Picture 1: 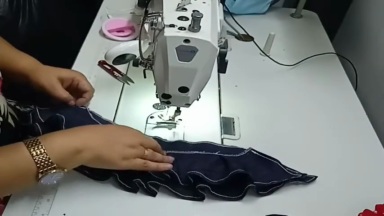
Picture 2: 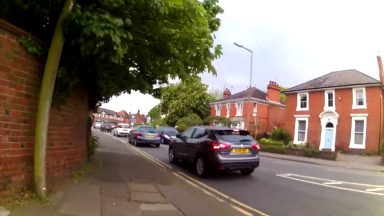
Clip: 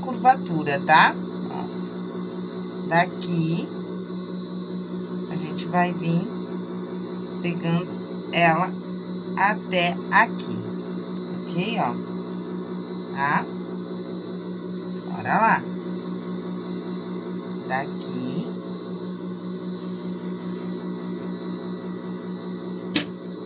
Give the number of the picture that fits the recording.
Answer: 1